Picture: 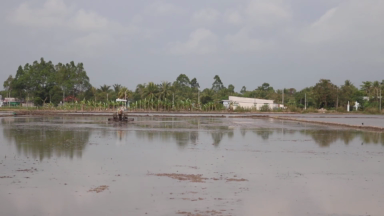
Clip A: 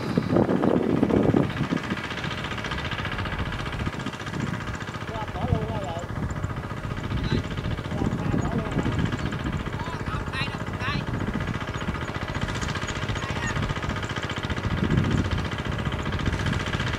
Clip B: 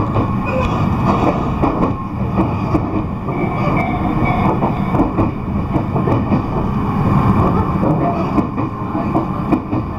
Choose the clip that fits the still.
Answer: A